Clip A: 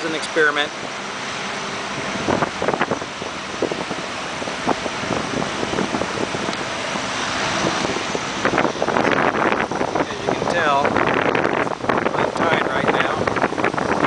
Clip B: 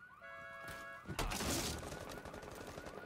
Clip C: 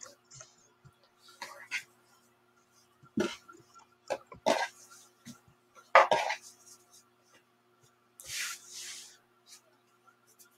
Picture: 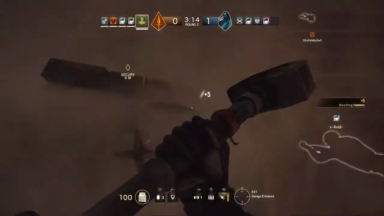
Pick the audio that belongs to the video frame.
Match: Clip B